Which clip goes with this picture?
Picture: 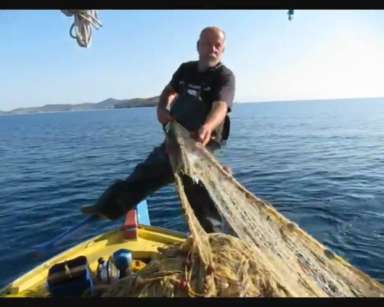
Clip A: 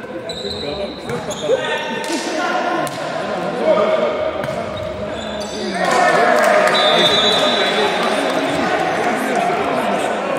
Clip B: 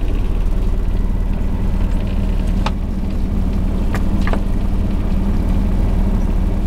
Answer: B